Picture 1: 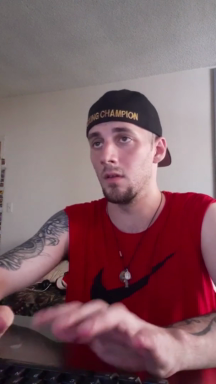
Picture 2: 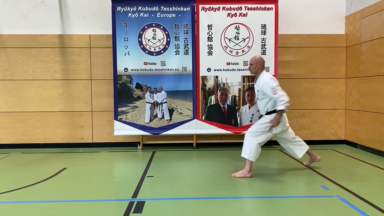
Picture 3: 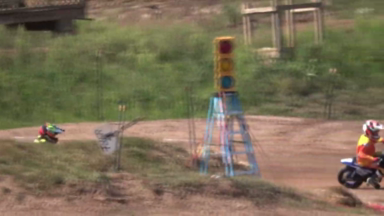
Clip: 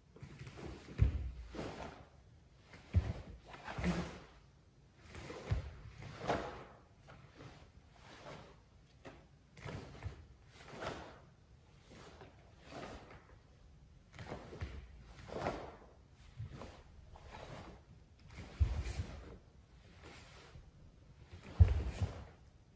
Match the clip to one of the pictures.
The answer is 2